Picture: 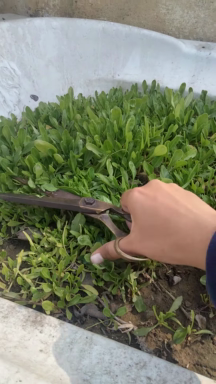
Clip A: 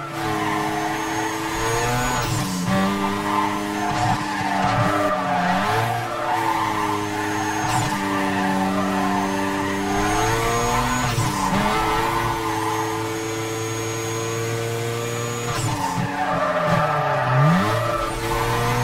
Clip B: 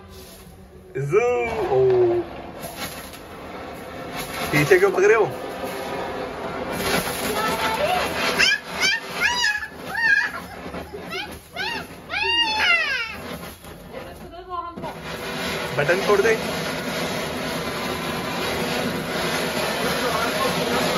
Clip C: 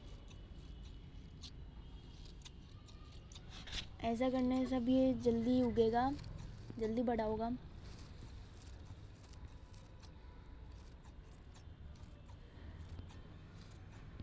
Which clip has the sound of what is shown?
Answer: C